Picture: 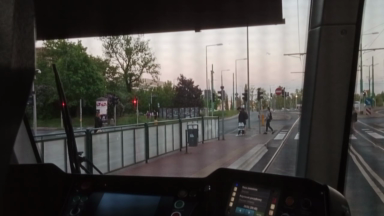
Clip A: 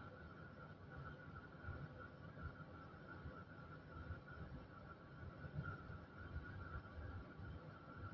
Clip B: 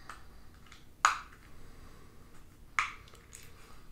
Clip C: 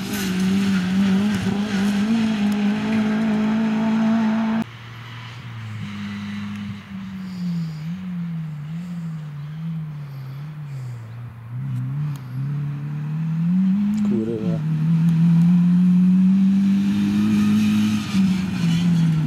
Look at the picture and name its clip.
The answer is A